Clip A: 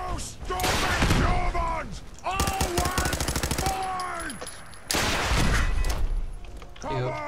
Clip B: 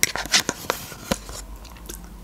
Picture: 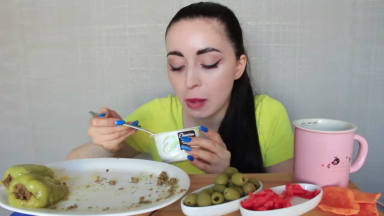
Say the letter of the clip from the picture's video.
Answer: B